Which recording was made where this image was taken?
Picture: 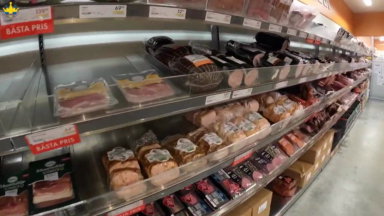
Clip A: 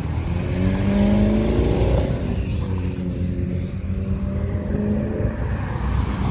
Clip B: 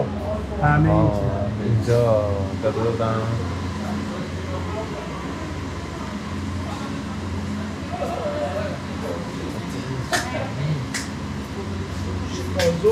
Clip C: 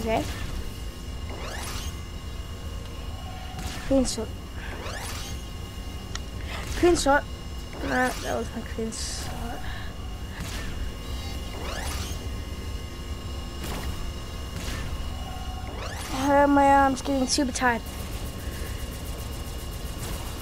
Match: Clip B